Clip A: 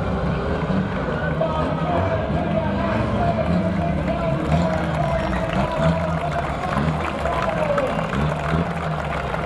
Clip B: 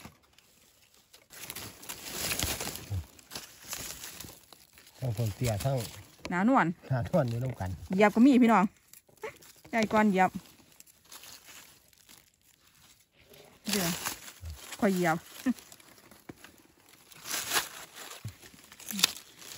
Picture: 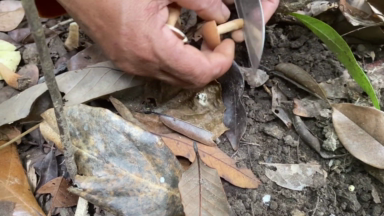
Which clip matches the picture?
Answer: B